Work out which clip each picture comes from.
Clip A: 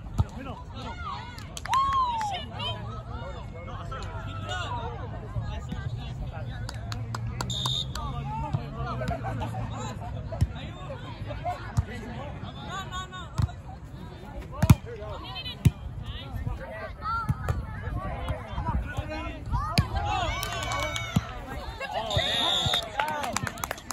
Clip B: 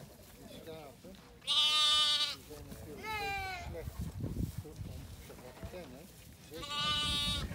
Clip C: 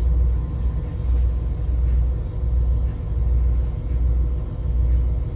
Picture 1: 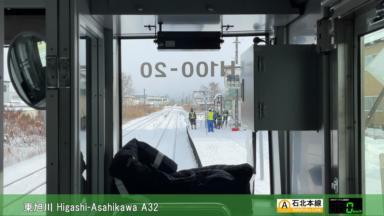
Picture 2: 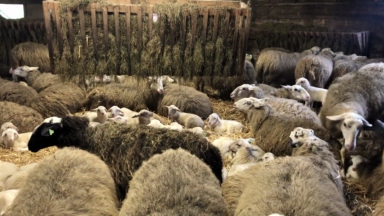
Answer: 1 C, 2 B